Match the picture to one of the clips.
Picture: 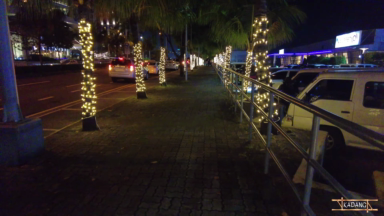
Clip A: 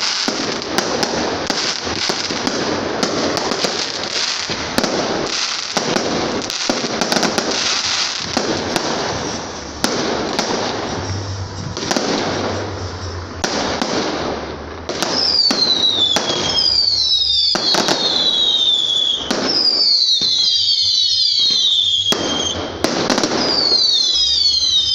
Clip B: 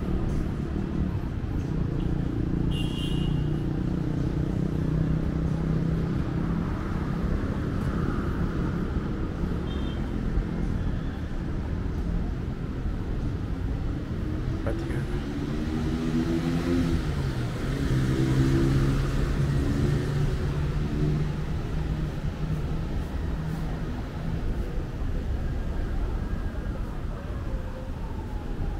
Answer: B